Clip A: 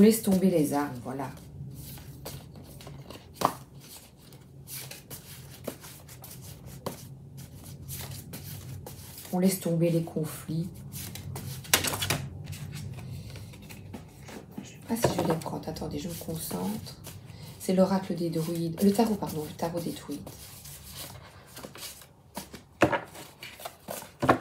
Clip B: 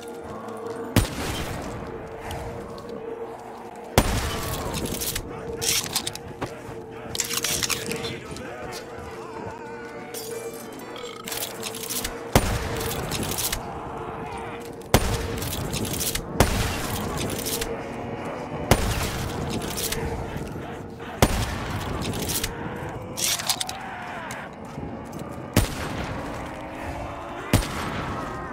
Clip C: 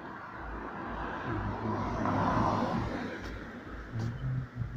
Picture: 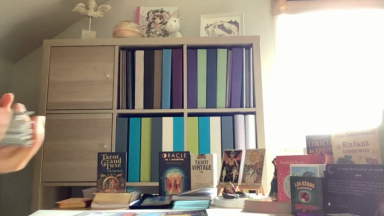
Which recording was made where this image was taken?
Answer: A